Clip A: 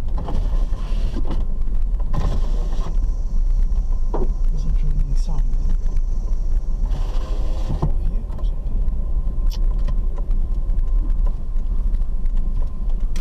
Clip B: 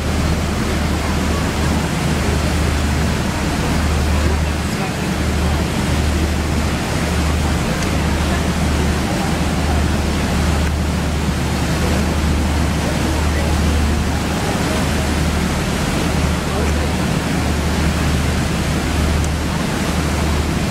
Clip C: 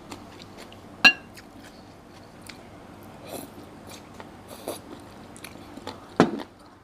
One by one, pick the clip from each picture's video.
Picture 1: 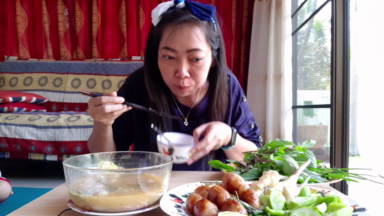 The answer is C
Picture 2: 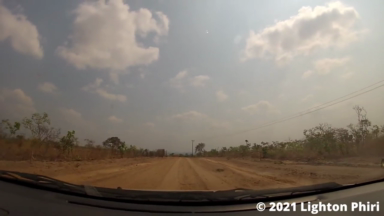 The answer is A